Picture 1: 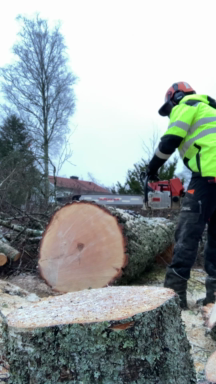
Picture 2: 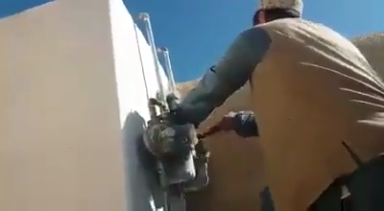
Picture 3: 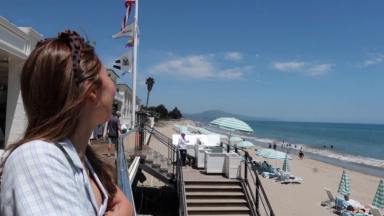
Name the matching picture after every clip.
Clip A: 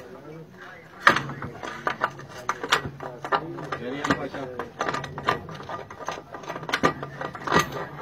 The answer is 2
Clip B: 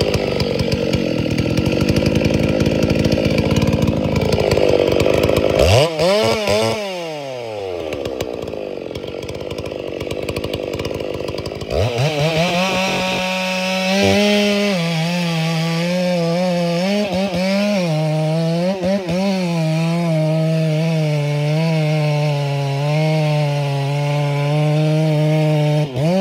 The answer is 1